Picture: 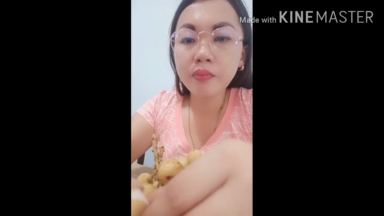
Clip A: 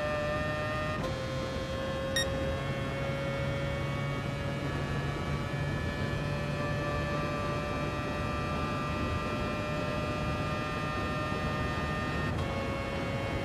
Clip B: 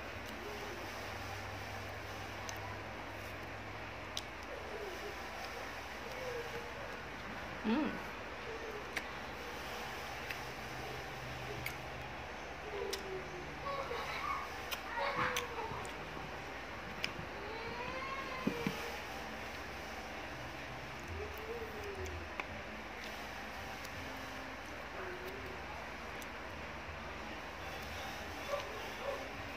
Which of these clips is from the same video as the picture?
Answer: B